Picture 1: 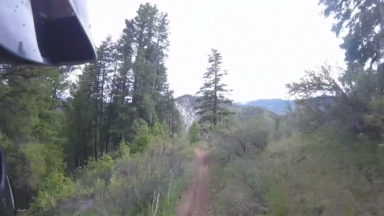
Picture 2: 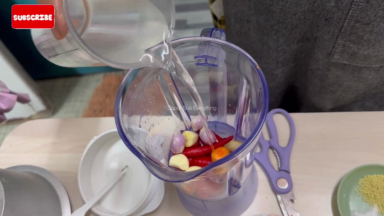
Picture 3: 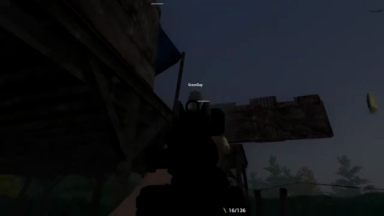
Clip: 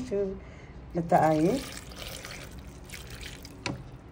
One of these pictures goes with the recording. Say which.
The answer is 2